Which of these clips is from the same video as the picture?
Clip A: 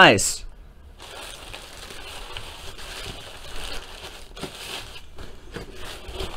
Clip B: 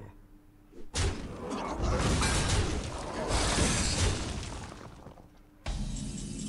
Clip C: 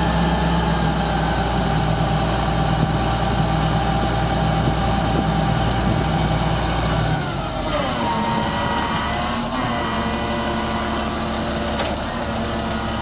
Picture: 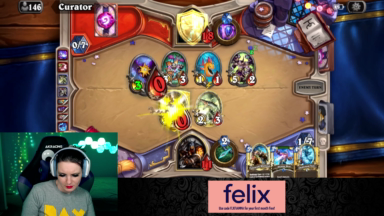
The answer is B